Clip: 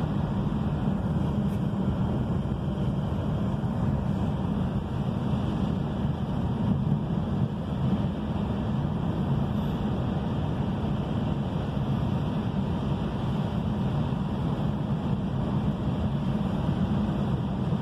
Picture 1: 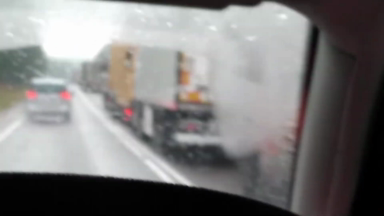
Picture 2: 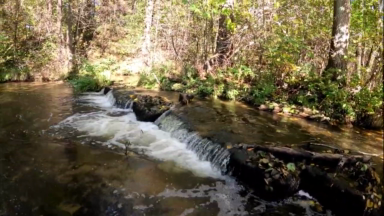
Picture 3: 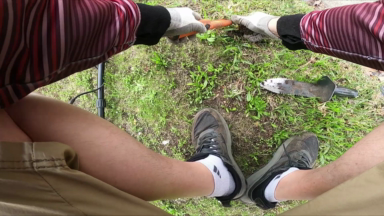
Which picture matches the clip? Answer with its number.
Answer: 1